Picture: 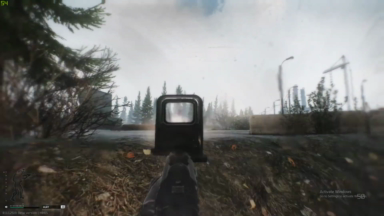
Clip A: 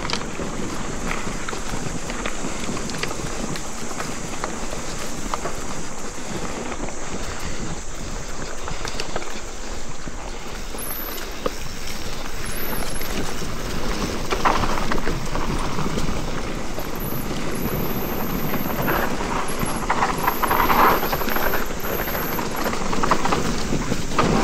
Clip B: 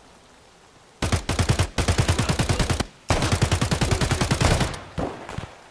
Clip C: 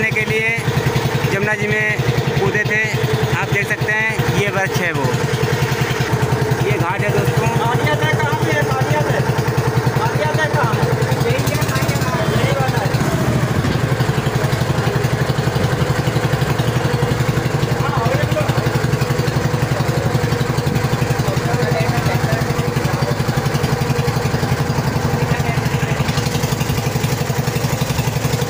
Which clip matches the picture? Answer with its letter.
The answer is B